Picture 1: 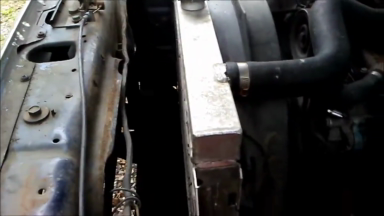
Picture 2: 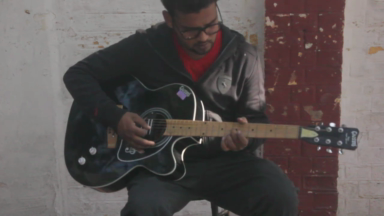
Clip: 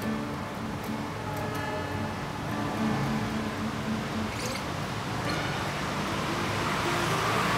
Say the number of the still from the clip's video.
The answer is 2